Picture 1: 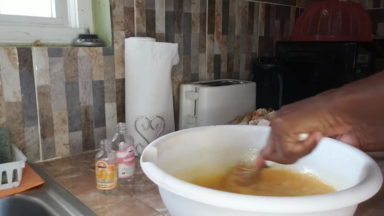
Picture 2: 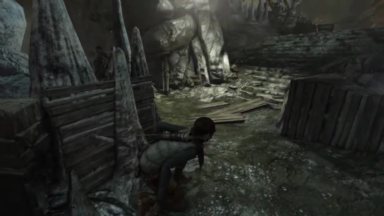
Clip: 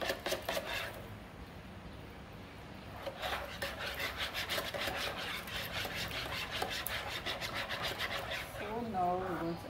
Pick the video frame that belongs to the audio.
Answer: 1